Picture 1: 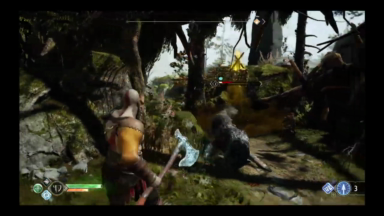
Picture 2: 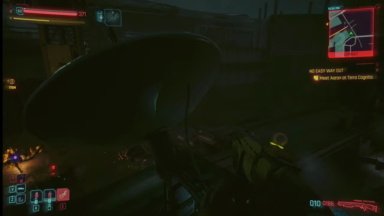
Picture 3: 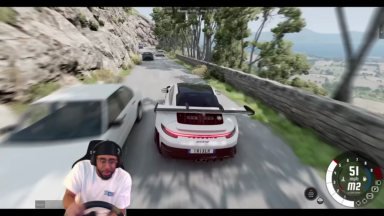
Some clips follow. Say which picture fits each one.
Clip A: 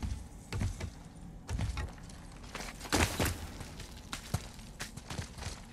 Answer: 1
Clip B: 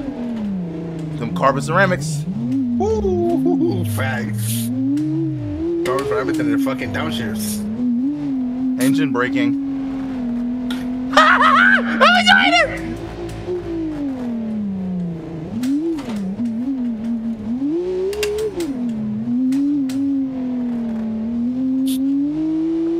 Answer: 3